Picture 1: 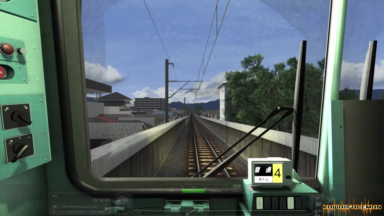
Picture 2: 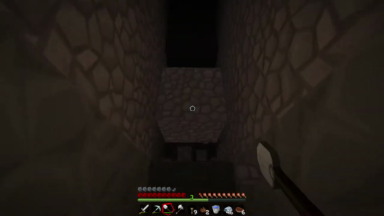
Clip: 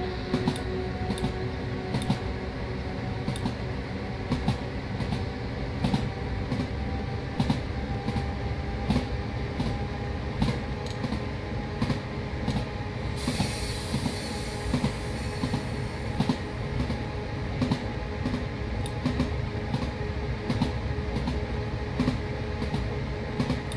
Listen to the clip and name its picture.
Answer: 1